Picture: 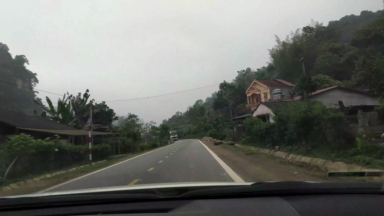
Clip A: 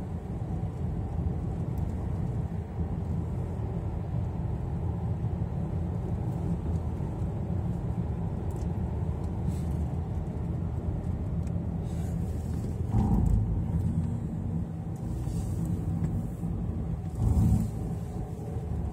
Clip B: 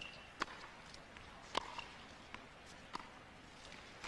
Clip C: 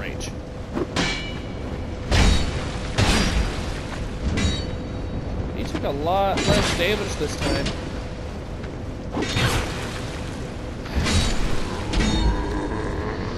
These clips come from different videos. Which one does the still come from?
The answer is A